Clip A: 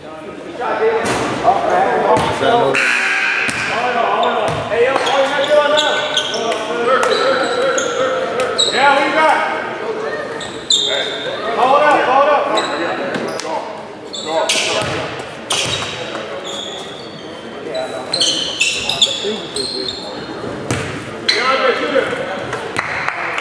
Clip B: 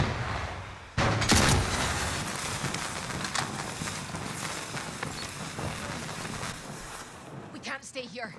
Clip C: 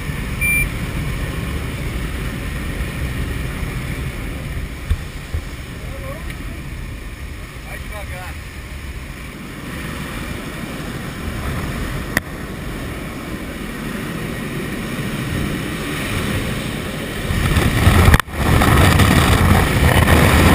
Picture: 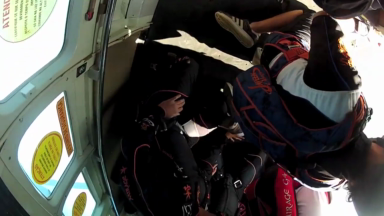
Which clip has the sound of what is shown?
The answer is C